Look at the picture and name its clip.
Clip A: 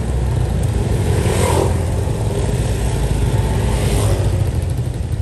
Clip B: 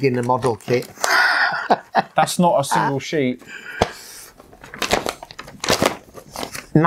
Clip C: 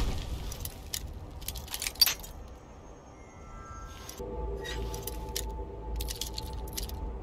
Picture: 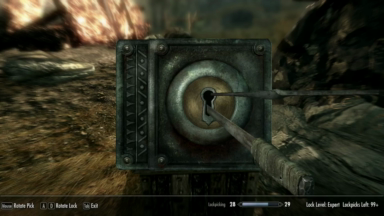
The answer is C